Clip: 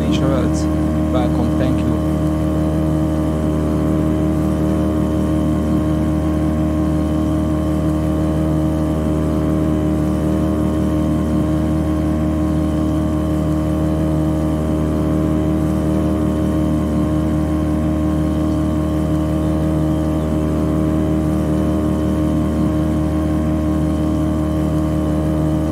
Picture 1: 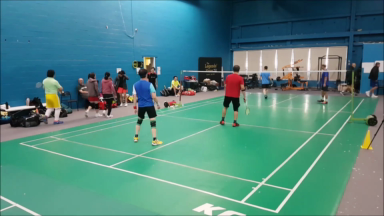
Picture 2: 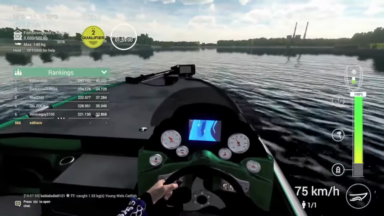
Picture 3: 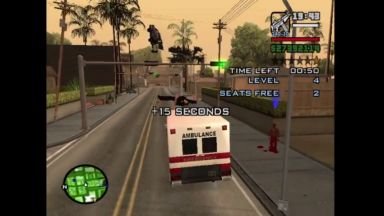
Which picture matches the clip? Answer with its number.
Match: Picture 2